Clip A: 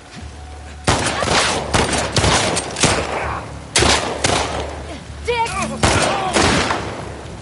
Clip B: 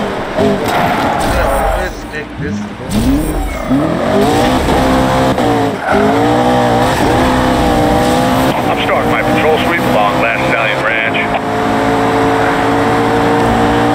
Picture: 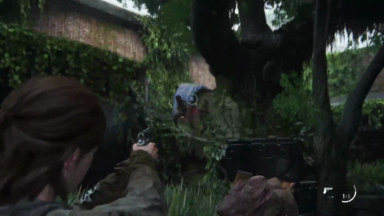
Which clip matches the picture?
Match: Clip A